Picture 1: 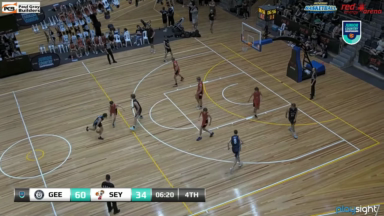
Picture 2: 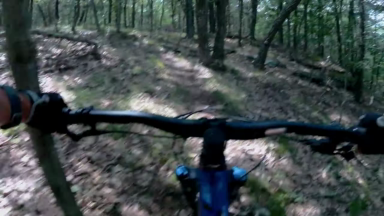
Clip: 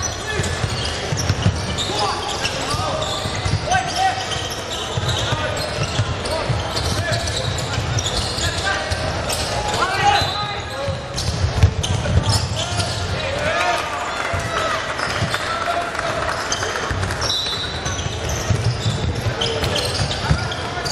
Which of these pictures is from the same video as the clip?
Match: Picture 1